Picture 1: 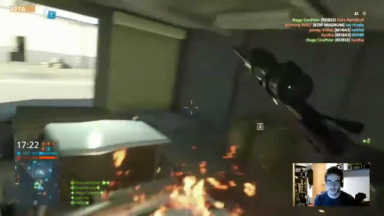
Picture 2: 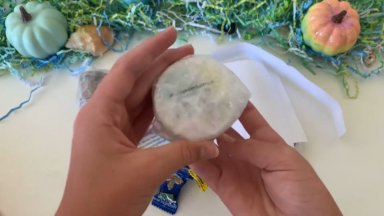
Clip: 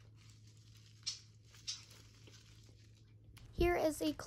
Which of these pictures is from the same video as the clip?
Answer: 2